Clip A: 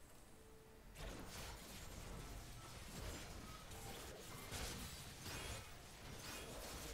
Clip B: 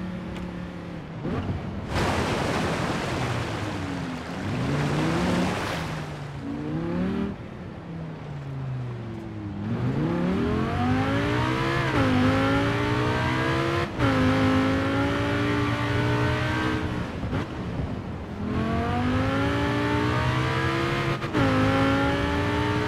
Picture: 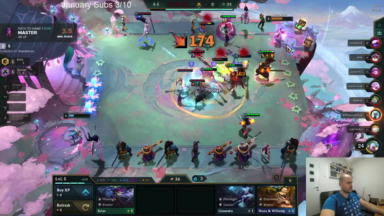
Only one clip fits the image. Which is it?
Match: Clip A